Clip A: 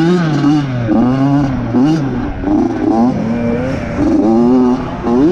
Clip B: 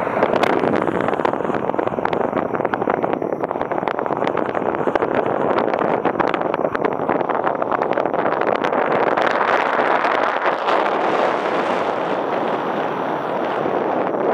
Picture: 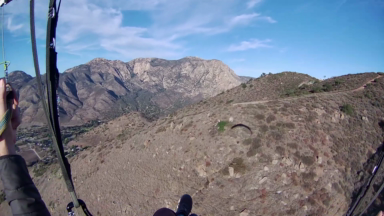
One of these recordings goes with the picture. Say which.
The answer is B